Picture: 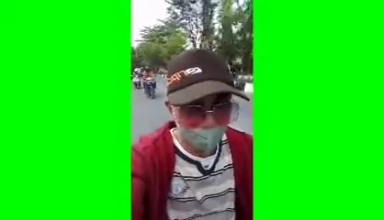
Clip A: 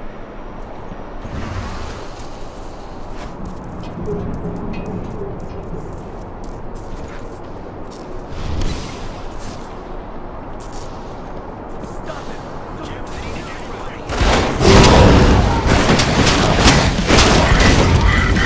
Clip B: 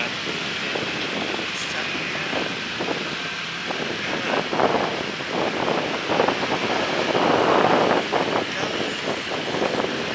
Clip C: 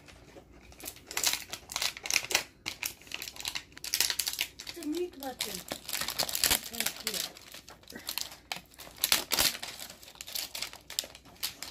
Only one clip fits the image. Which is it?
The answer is B